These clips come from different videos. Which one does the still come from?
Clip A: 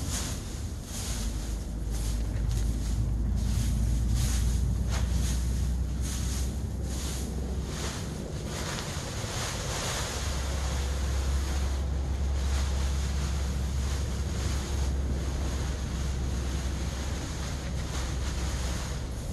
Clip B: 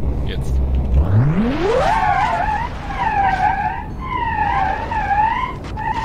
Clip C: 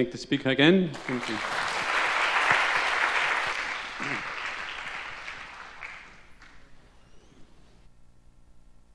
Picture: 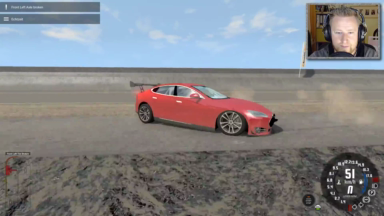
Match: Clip B